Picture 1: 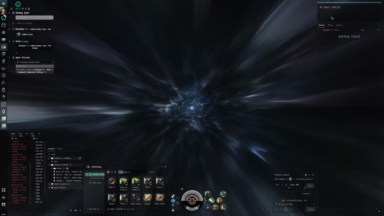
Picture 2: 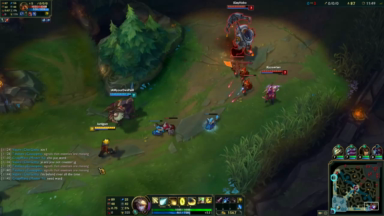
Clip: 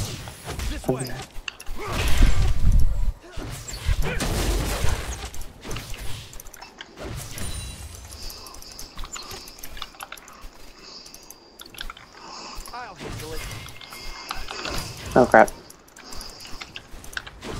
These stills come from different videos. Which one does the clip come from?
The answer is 2